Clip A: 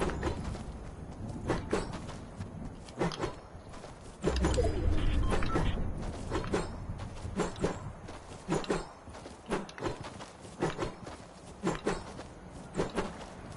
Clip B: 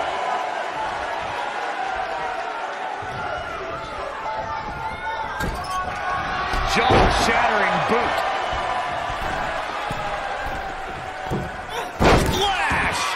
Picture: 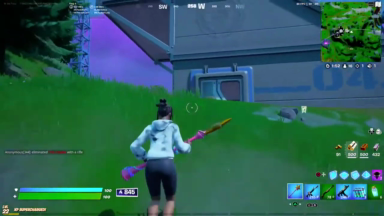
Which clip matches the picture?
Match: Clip A